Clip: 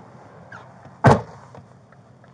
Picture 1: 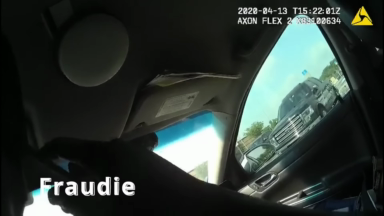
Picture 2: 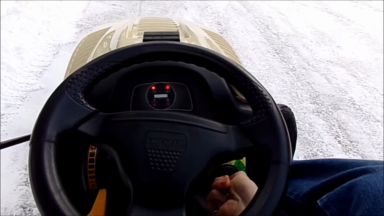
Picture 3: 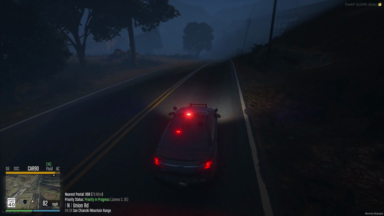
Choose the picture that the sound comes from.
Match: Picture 1